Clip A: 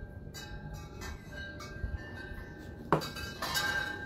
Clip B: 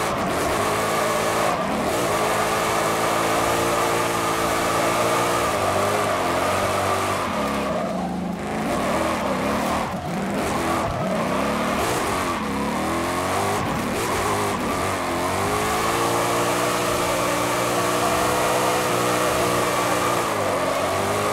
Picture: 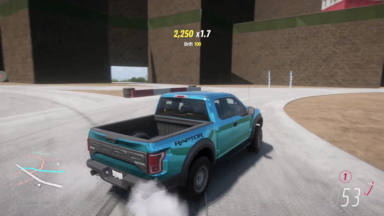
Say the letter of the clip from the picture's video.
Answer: B